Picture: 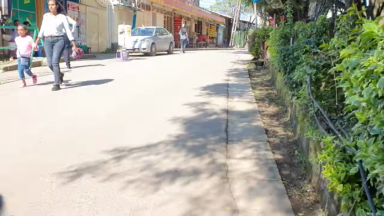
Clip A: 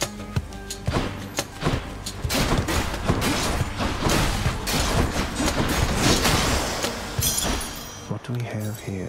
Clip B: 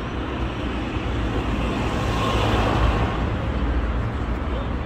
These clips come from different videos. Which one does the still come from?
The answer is B